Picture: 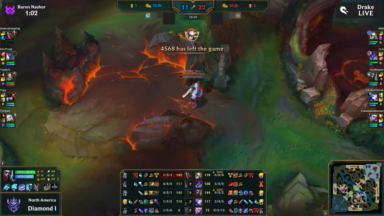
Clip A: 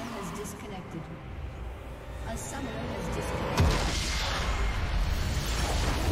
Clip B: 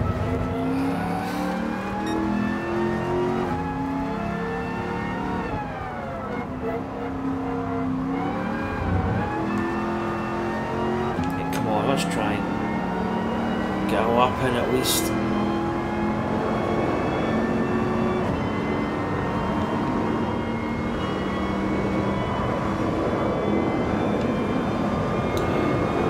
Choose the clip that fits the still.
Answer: A